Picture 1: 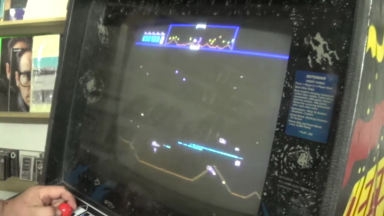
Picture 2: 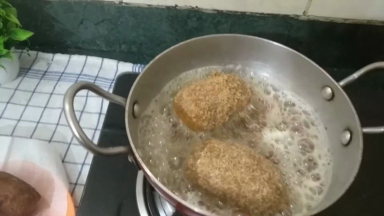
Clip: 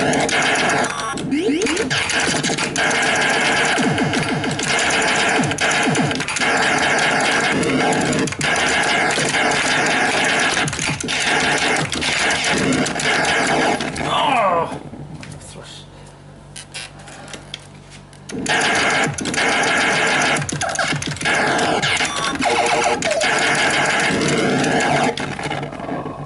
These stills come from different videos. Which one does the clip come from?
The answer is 1